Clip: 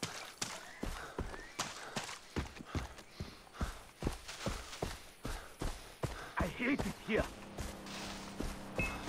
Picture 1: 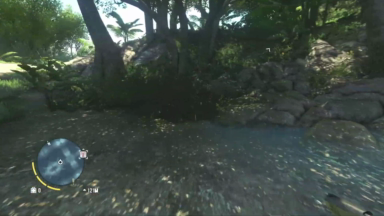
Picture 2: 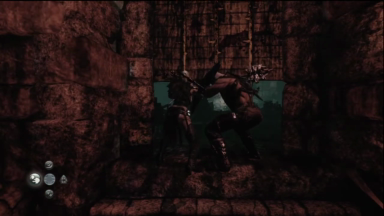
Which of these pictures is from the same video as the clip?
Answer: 1